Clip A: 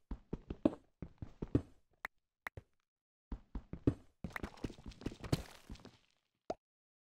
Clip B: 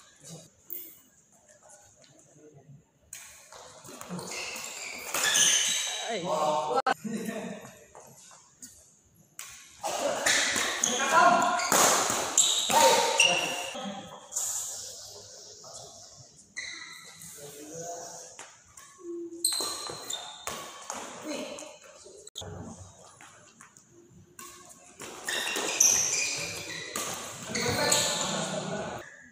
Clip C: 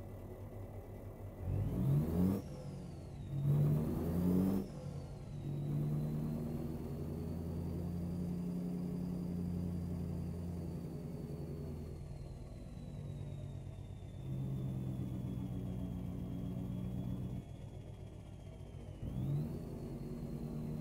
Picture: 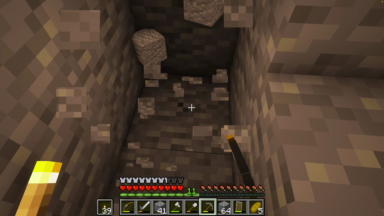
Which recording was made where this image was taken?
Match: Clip A